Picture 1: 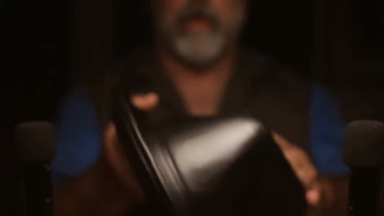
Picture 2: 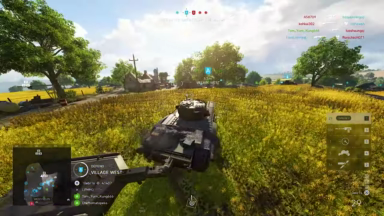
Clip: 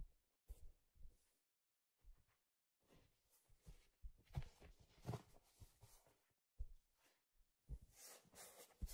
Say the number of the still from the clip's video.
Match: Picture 1